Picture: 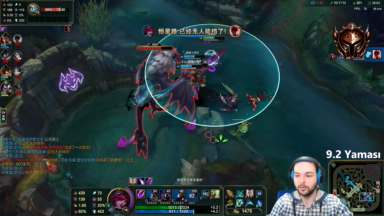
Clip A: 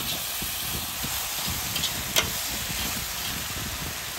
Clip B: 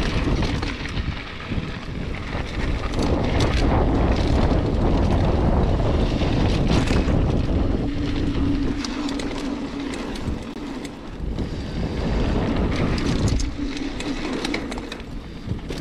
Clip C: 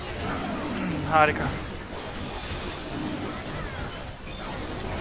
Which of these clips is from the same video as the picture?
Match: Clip C